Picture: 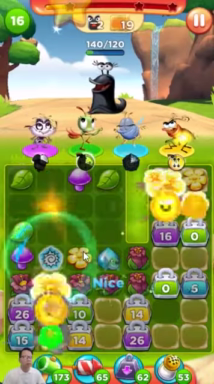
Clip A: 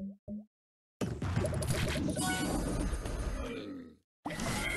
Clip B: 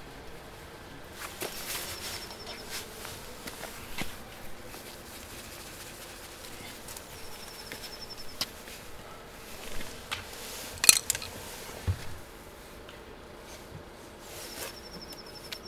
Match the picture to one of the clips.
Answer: A